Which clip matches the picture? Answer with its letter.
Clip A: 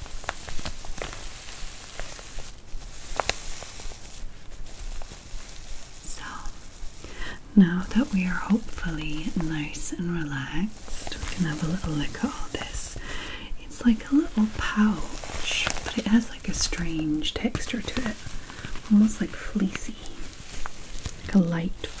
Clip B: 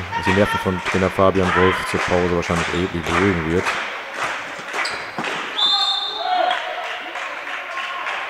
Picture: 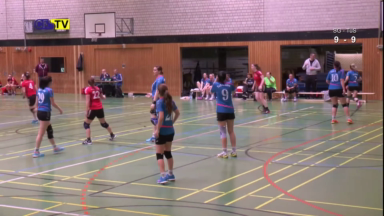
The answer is B